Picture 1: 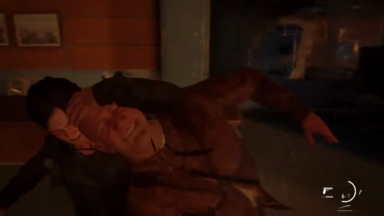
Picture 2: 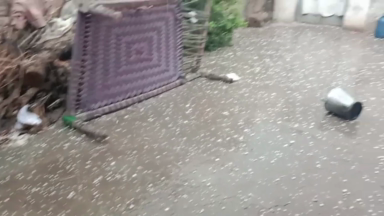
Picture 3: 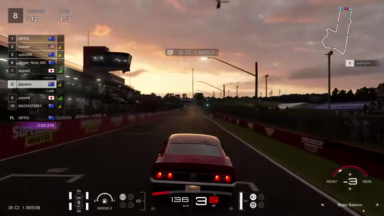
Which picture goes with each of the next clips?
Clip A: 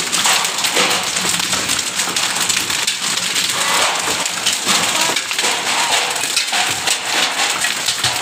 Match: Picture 2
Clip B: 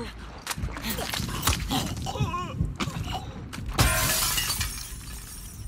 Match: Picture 1